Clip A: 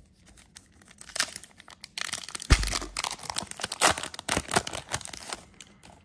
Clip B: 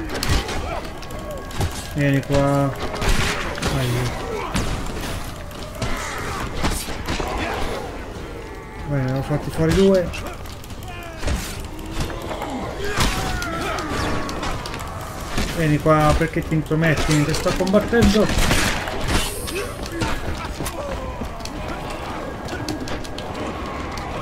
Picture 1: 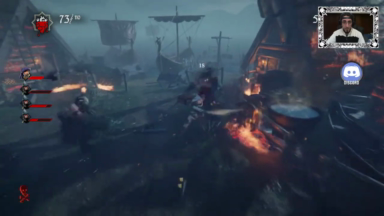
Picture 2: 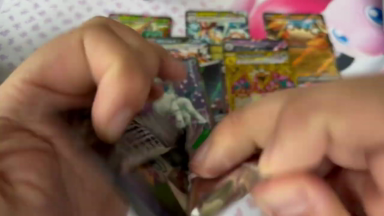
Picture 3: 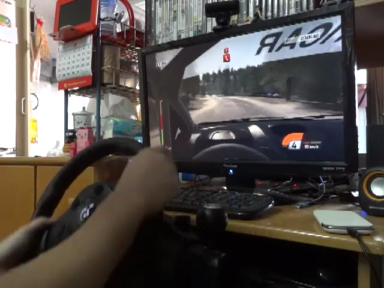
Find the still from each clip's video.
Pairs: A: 2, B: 1